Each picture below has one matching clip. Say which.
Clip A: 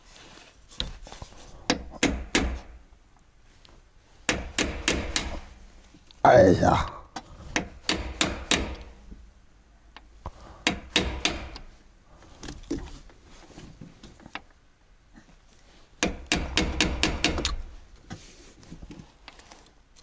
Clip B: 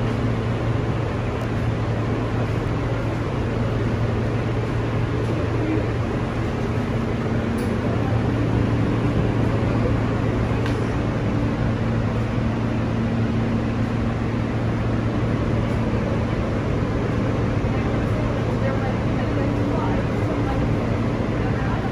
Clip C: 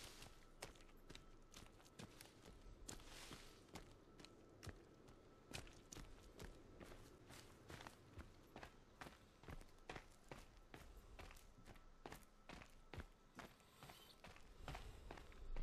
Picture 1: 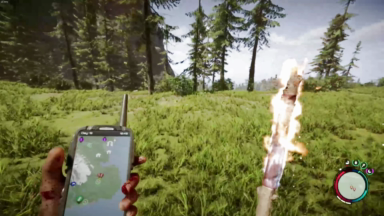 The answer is C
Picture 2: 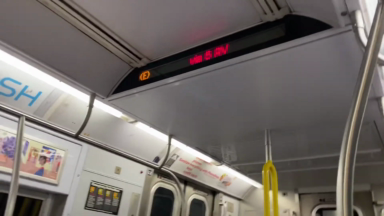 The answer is B